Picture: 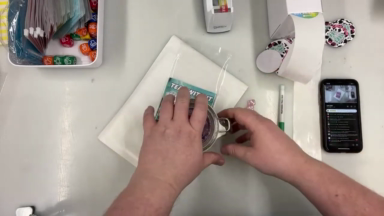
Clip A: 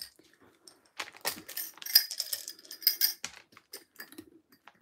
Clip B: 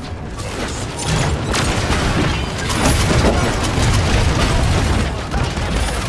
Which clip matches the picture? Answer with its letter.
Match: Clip A